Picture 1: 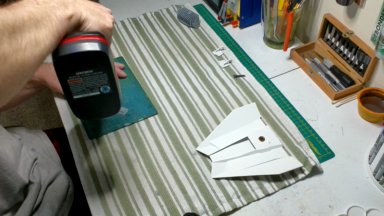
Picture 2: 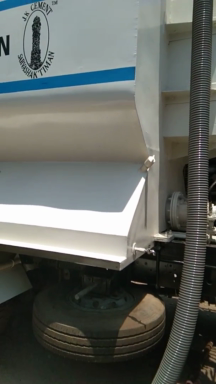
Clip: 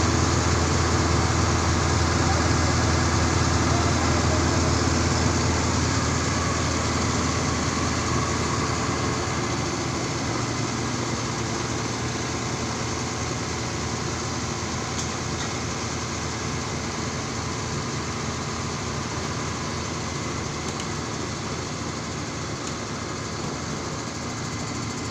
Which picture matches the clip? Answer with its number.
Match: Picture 2